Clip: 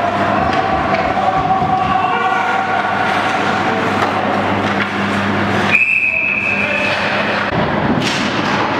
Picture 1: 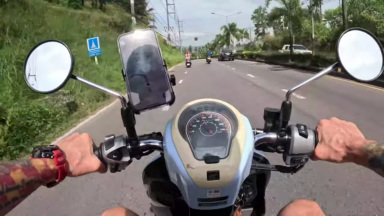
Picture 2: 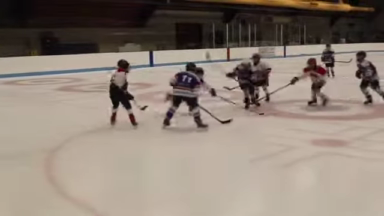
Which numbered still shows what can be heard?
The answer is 2